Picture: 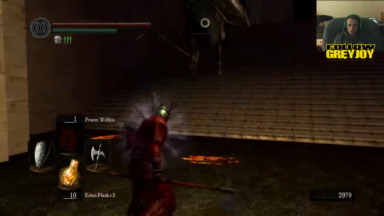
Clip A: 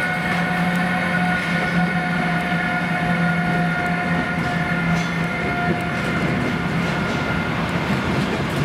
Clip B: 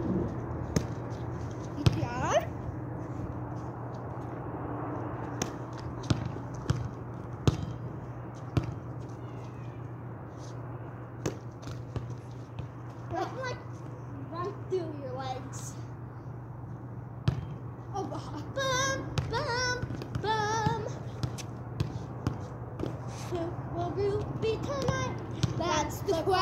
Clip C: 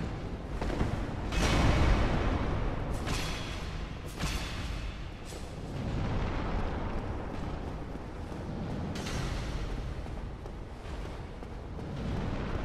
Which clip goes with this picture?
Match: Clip C